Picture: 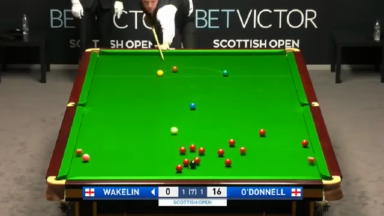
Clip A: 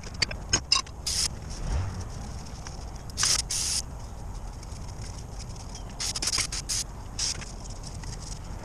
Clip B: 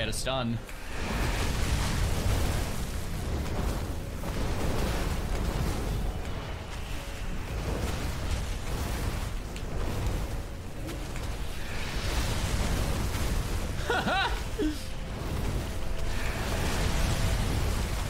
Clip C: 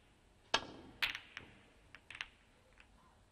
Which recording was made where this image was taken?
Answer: C